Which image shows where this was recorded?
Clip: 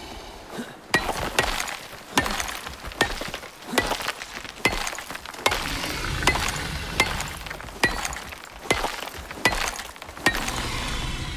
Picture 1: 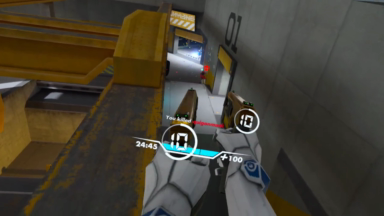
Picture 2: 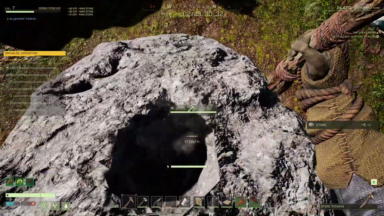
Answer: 2